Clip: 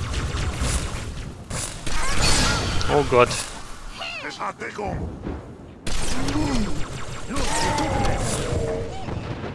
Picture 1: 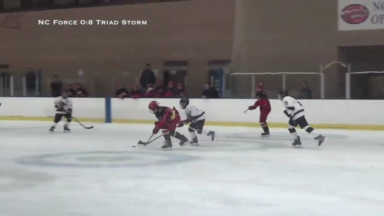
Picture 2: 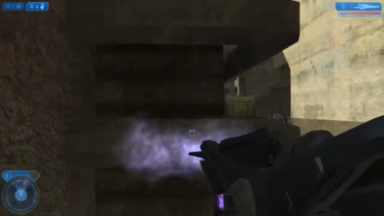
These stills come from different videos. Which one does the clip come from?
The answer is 2